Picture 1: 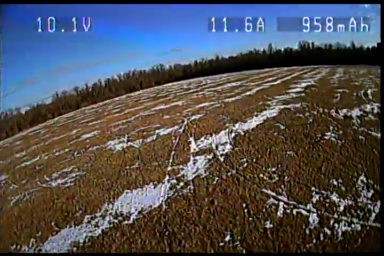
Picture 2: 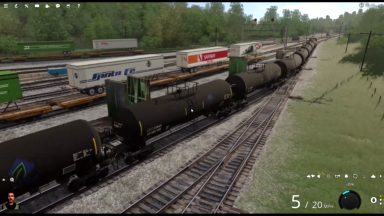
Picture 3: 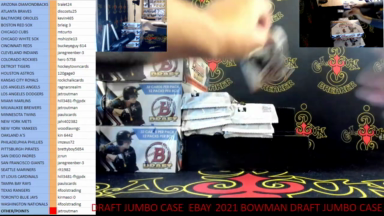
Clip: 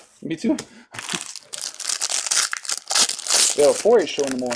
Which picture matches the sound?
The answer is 3